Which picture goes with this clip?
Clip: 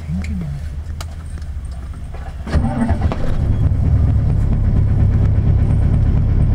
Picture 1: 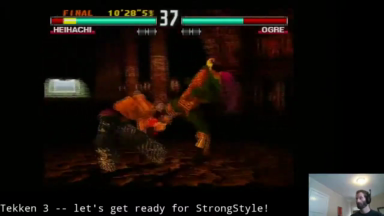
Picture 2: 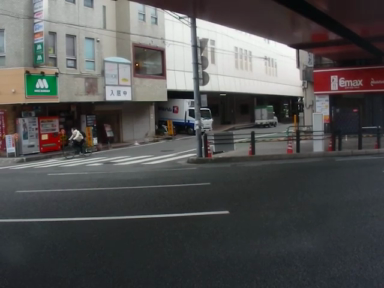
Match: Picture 2